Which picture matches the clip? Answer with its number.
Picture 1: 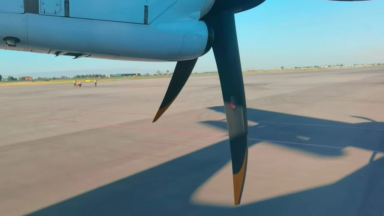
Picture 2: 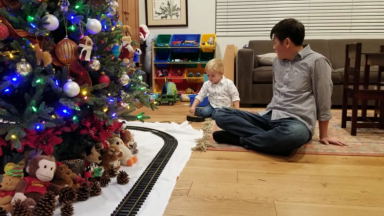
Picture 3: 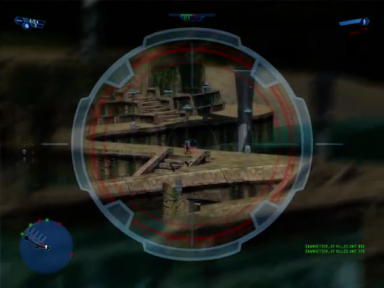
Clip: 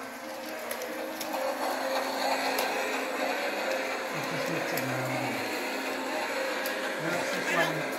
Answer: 2